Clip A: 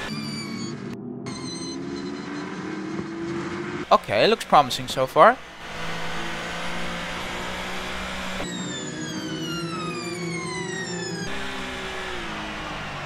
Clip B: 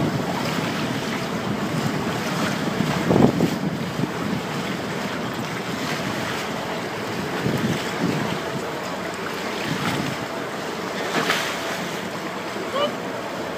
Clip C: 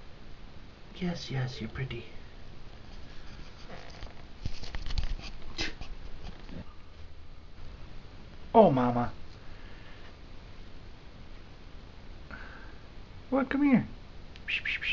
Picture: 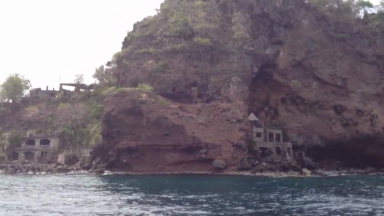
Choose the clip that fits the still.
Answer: B